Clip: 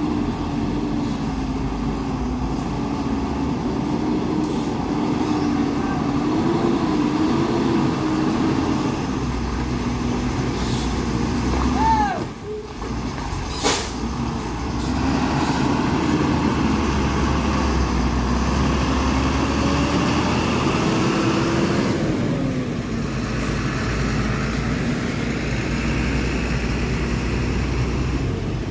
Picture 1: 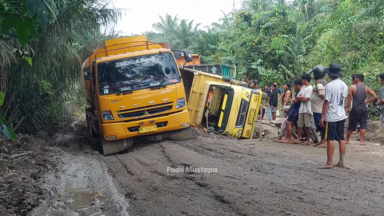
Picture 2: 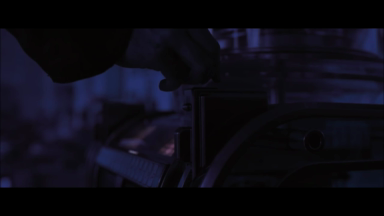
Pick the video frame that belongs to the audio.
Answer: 1